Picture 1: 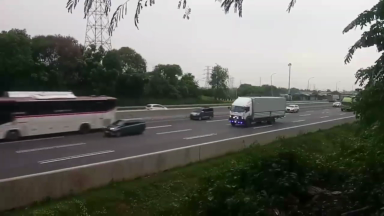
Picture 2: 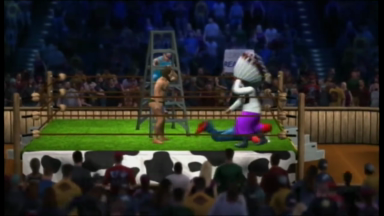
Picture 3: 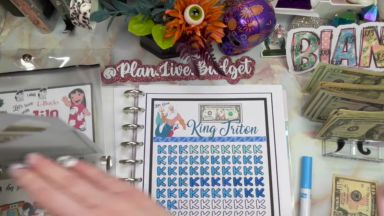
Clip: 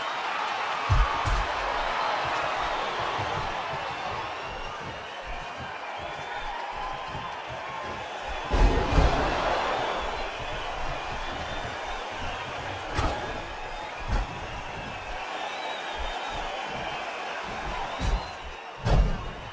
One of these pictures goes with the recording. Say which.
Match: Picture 2